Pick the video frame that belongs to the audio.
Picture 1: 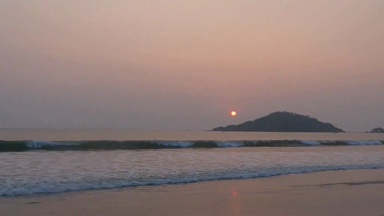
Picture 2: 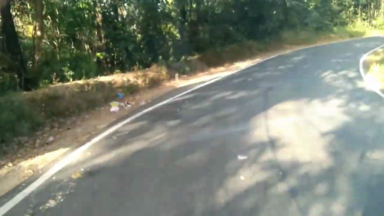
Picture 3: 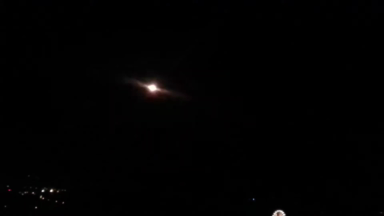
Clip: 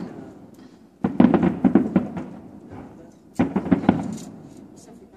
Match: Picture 3